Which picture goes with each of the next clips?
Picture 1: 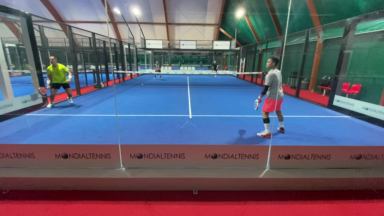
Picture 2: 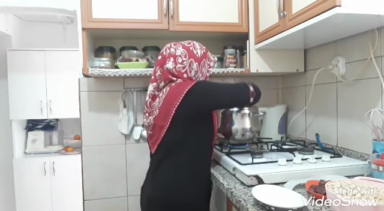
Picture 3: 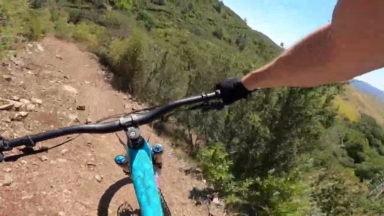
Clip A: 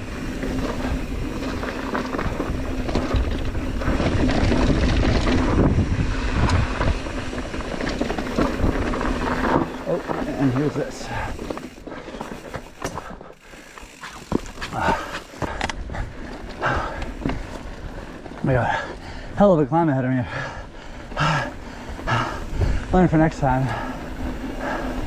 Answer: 3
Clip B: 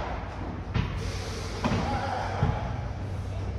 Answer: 1